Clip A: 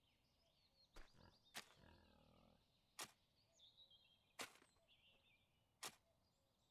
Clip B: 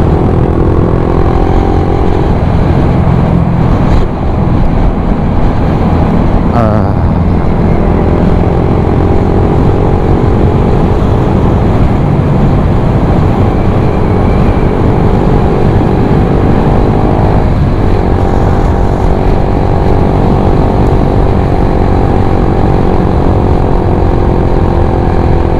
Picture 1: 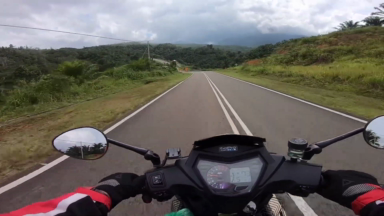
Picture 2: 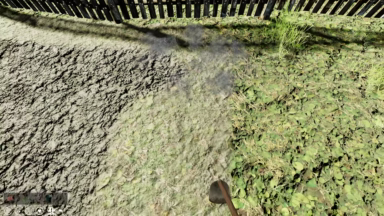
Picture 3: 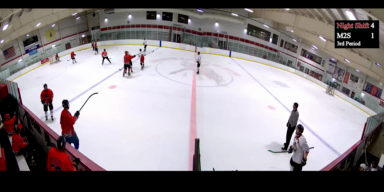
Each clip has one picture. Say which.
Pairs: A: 2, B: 1